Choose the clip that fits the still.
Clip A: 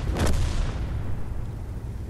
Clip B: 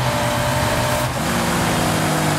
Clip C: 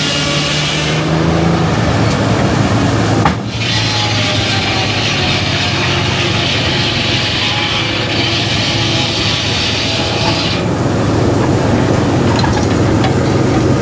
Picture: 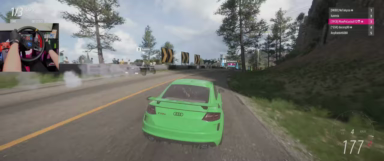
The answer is B